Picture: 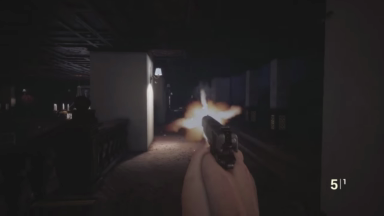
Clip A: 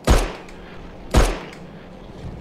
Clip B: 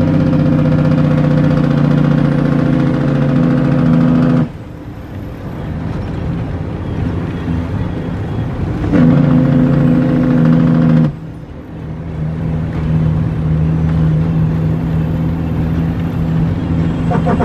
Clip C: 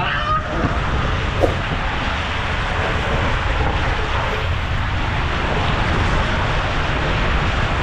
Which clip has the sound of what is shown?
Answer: A